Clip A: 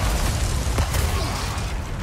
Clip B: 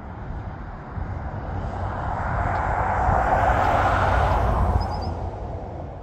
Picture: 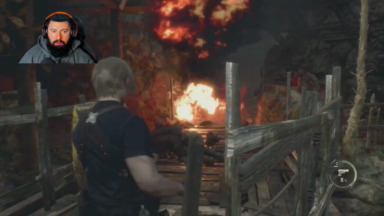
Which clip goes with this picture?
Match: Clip A